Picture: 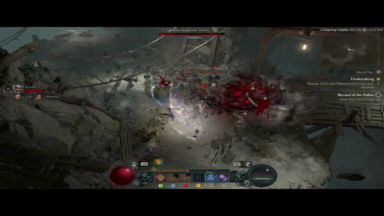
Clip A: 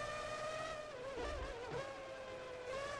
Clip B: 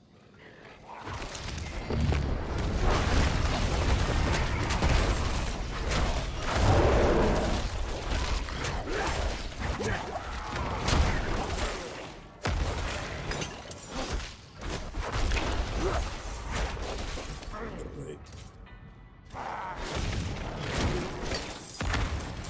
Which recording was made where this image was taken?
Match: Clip B